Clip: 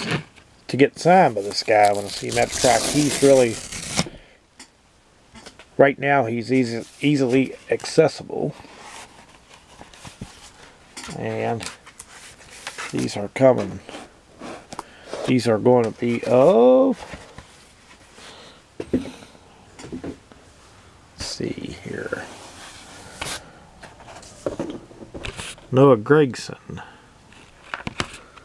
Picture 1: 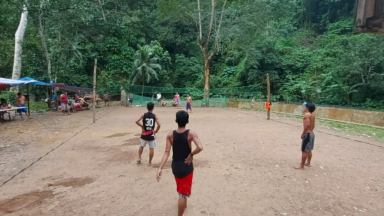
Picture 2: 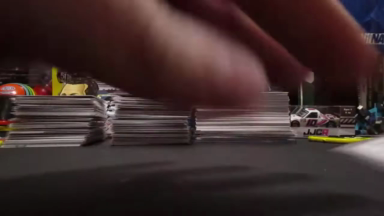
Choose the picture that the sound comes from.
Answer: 2